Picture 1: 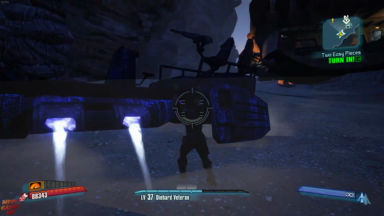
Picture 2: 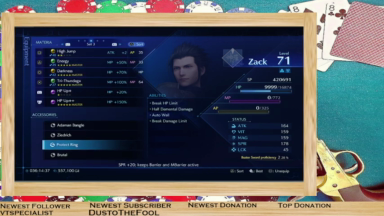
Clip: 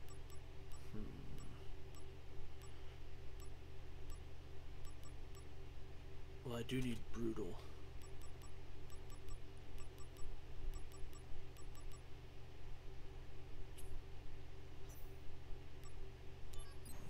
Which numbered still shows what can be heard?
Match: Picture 2